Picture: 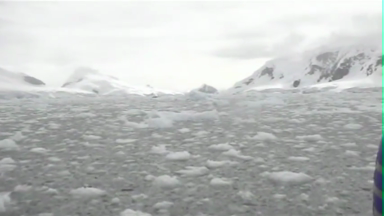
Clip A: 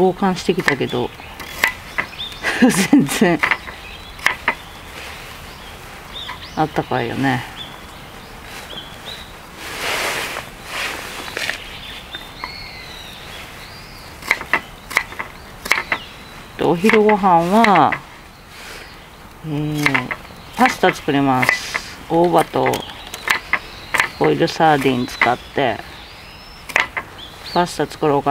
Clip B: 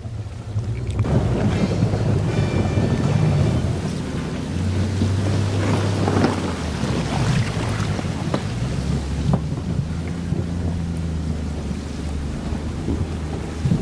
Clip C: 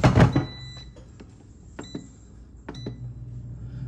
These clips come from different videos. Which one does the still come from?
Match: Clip B